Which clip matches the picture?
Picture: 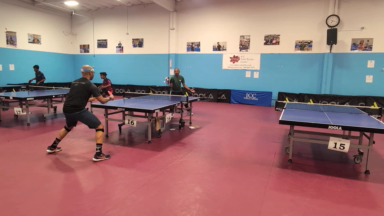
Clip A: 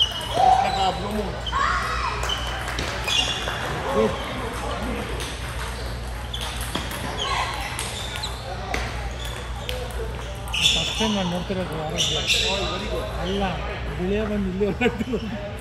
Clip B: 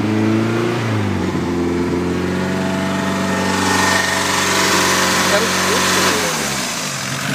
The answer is A